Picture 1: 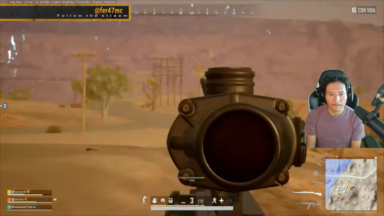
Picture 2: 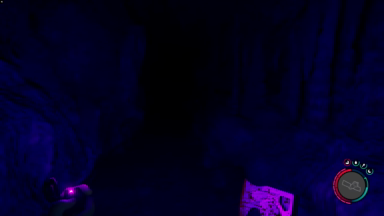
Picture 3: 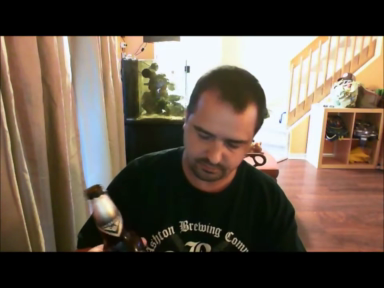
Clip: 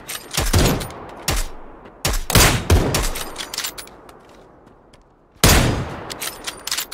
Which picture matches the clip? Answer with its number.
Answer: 1